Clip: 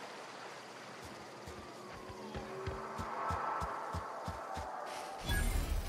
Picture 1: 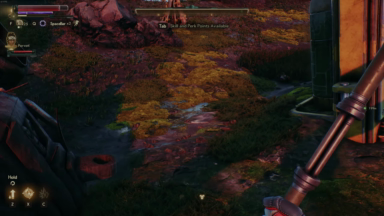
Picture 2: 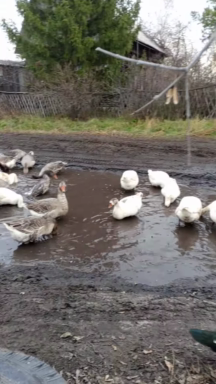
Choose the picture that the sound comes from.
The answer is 1